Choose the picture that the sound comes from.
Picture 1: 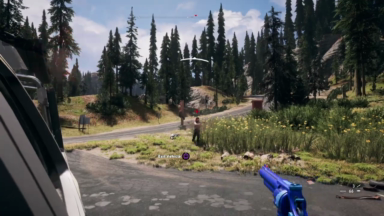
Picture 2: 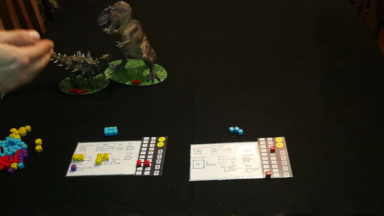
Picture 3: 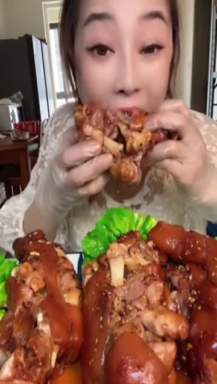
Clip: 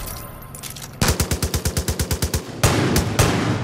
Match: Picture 1